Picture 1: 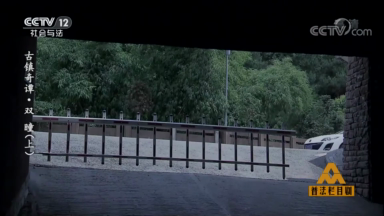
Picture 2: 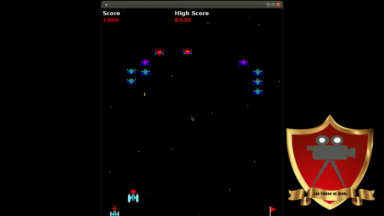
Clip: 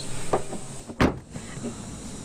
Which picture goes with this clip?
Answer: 1